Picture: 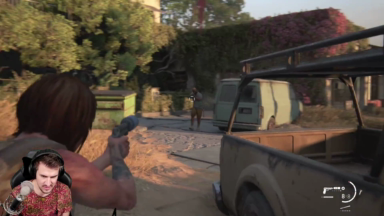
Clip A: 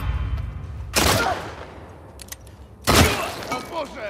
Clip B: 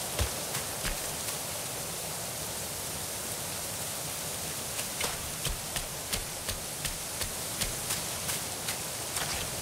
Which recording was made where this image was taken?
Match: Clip A